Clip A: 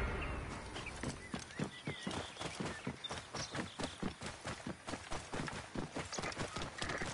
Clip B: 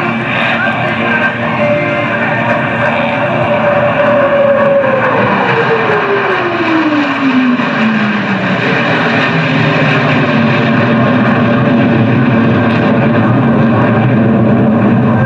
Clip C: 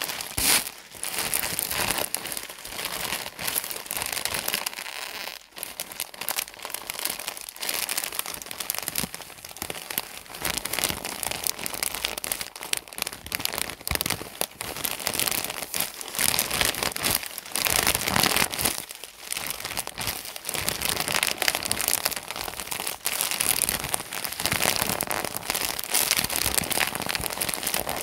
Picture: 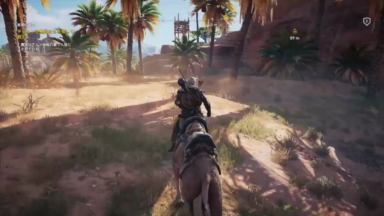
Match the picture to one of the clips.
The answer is A